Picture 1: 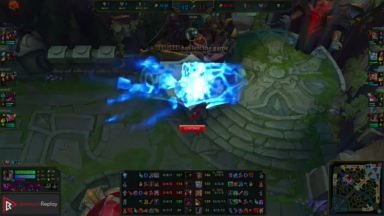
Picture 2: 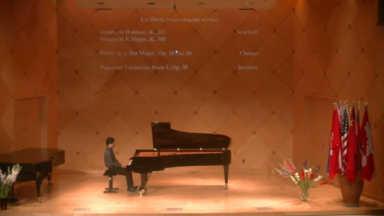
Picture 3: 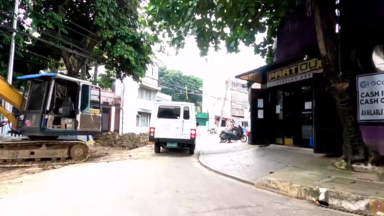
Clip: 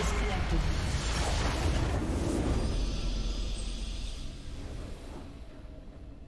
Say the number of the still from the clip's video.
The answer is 1